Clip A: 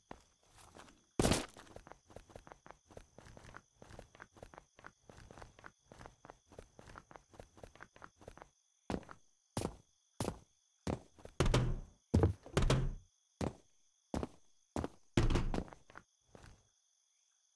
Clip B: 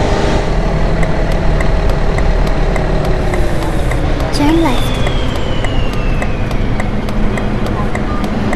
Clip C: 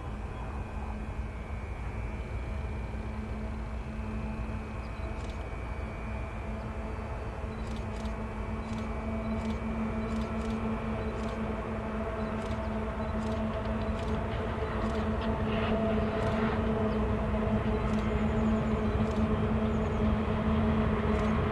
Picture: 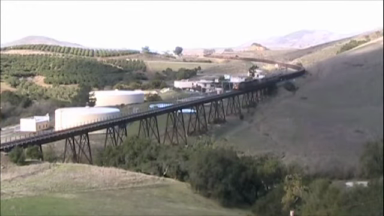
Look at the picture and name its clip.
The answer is C